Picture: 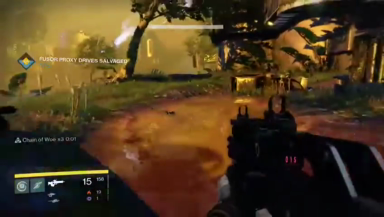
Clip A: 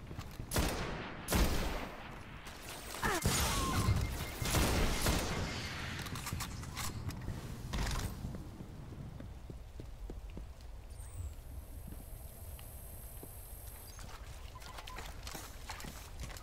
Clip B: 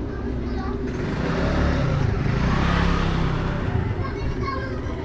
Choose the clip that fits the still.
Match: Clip A